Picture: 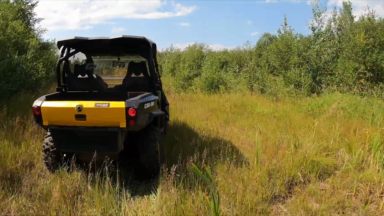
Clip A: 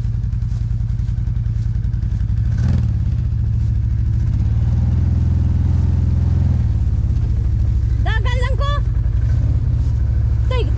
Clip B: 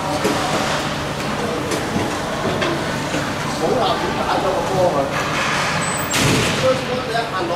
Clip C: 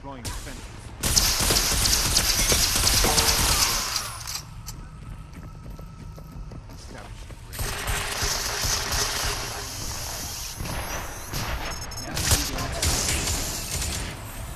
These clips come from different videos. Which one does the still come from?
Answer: A